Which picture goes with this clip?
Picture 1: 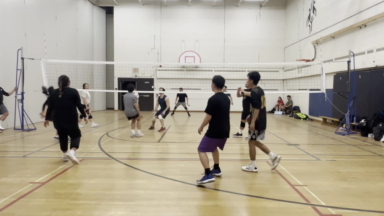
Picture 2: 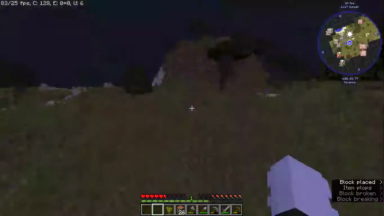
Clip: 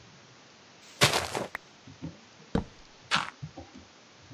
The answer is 2